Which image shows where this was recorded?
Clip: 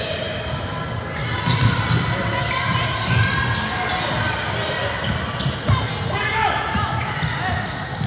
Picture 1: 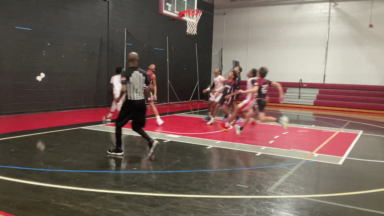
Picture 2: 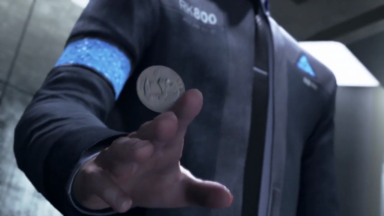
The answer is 1